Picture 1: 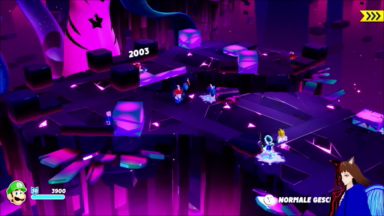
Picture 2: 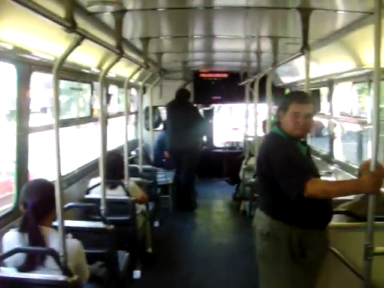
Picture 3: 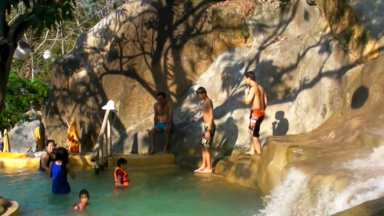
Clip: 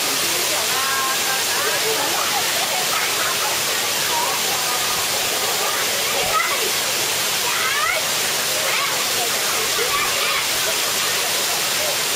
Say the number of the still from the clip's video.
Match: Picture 3